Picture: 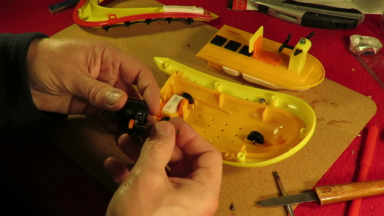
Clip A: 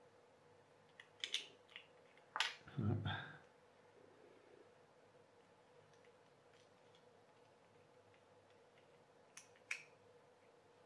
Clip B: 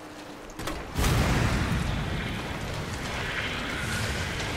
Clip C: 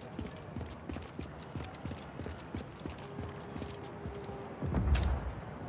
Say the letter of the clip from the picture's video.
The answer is A